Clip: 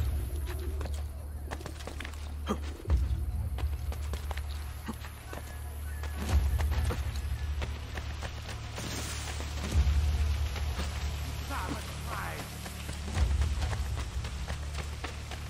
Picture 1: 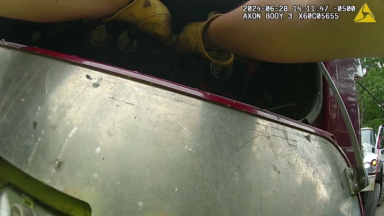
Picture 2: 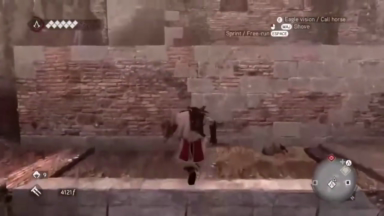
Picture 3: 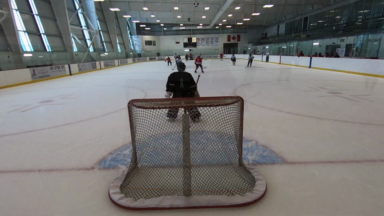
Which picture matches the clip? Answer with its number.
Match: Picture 2